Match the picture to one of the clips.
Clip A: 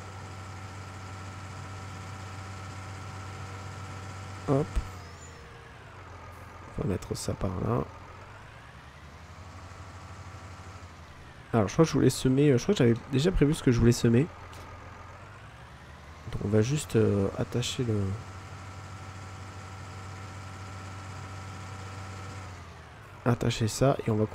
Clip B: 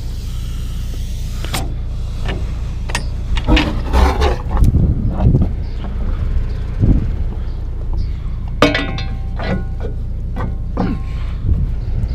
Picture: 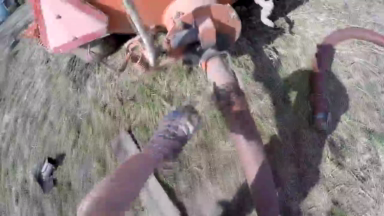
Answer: B